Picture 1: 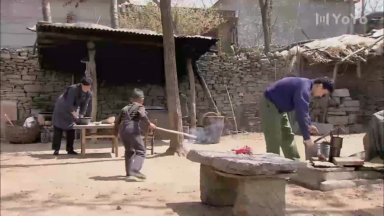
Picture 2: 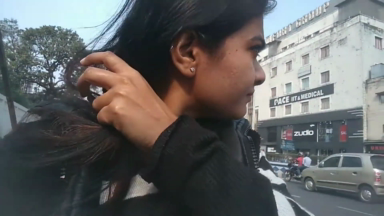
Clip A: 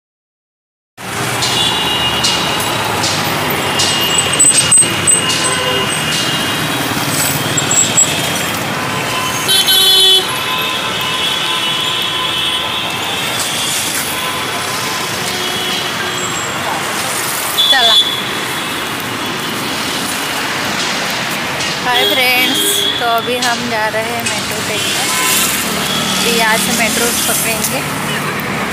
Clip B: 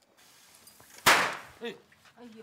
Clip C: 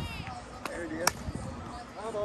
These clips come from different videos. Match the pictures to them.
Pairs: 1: B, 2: A